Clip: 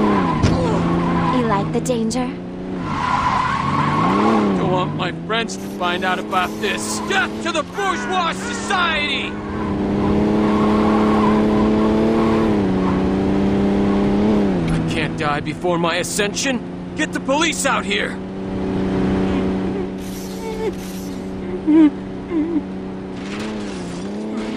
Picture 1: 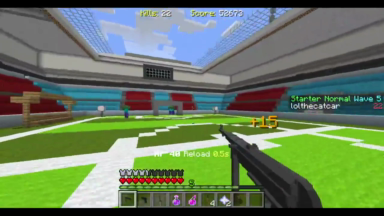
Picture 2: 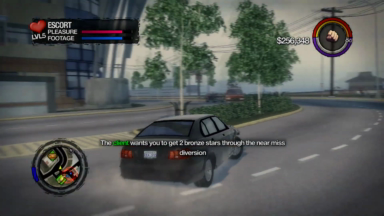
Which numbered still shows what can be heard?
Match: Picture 2